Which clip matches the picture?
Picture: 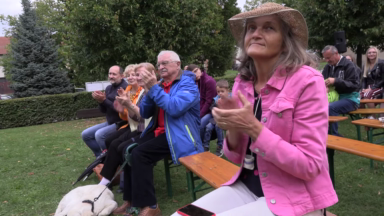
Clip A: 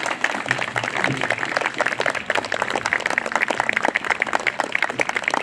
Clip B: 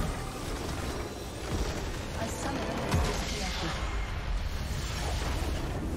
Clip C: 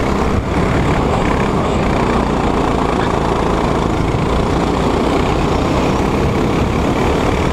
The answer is A